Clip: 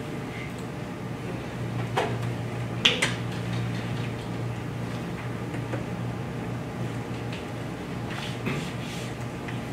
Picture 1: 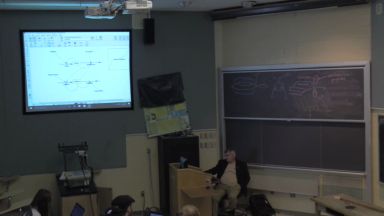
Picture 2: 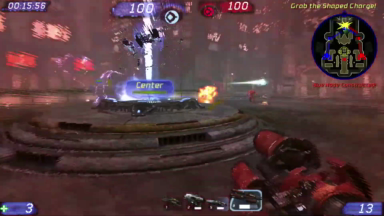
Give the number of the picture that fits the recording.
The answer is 1